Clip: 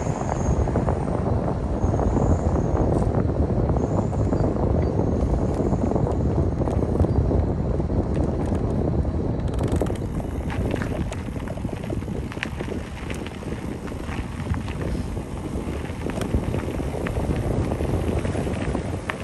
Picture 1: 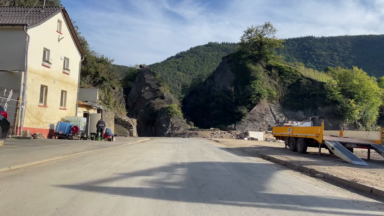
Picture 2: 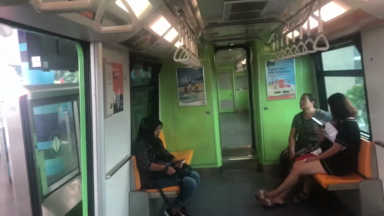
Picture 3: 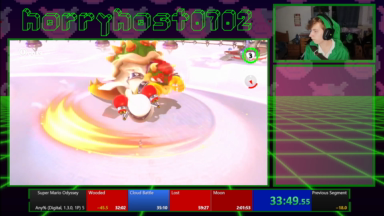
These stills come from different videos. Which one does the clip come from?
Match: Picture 1